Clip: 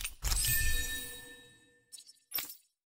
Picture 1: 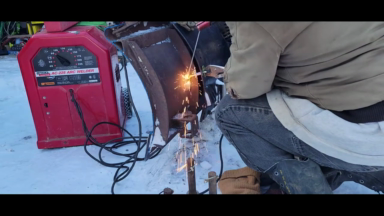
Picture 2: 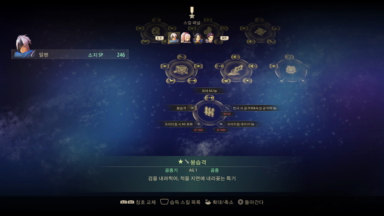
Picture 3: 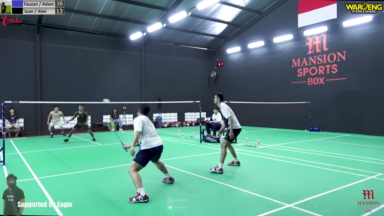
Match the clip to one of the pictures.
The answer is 2